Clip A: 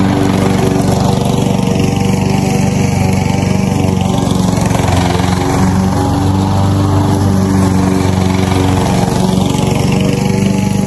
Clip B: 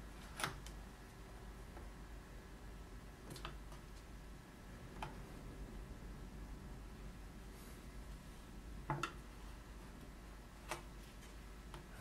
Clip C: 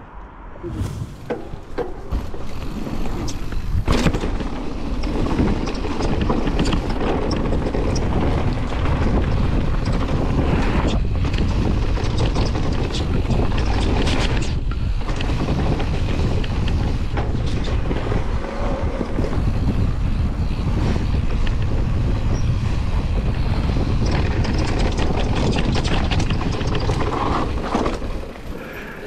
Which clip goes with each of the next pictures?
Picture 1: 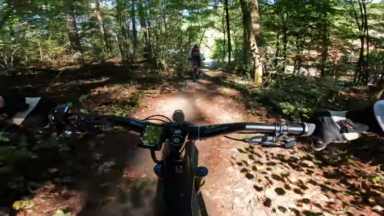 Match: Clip C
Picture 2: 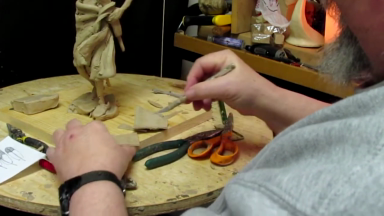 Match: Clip B